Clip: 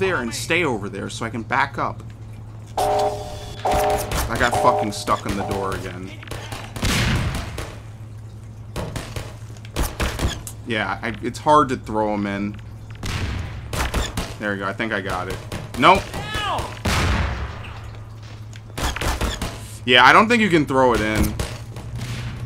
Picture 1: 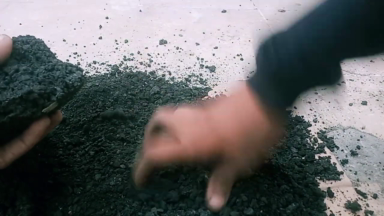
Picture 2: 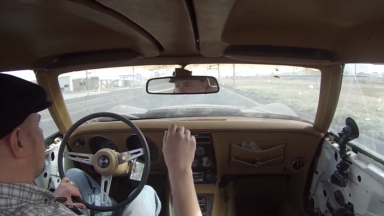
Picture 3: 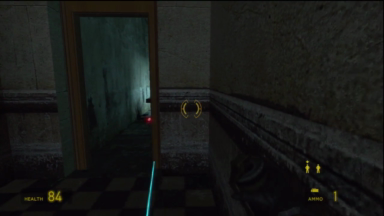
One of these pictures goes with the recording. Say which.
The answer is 3